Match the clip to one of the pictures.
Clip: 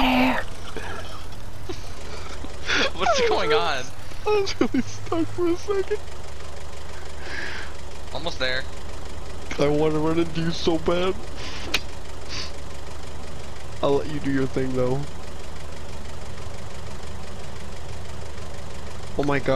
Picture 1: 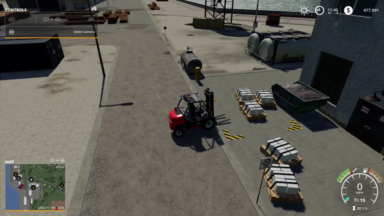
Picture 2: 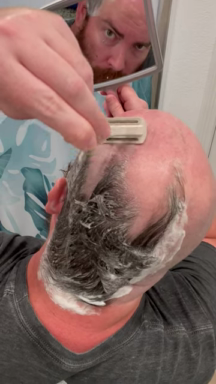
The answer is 1